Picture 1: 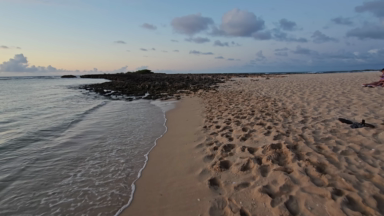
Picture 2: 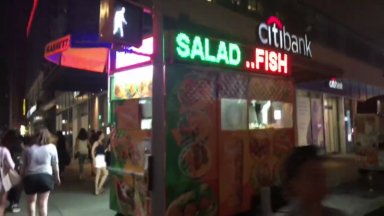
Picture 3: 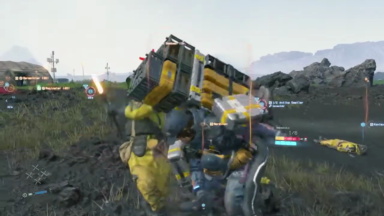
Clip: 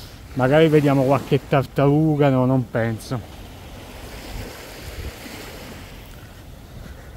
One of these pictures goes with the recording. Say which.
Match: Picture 1